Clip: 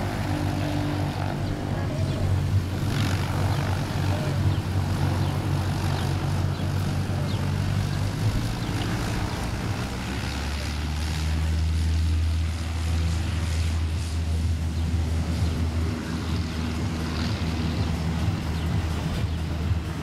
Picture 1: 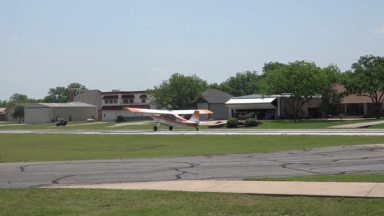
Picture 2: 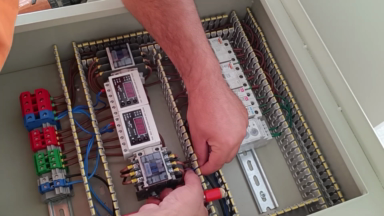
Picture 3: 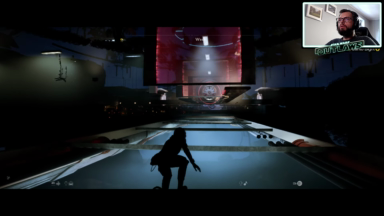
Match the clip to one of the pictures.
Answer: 1